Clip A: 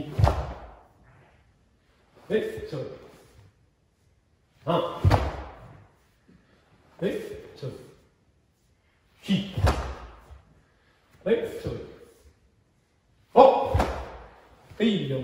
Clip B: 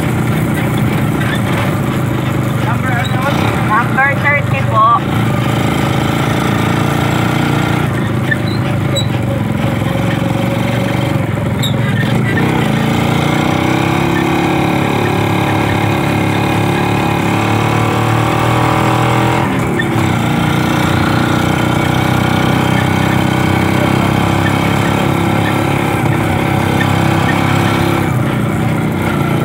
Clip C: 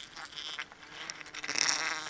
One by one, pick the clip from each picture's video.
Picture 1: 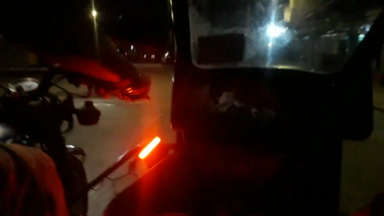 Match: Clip B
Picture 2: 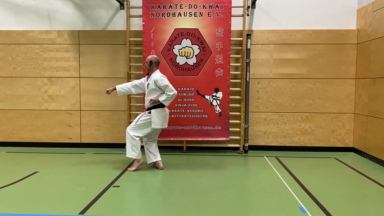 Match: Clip A